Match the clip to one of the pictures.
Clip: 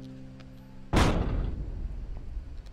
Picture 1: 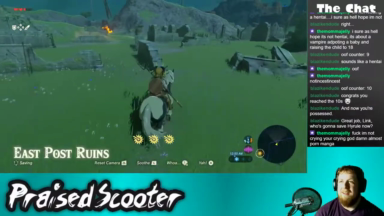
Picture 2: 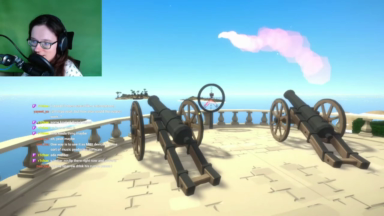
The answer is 2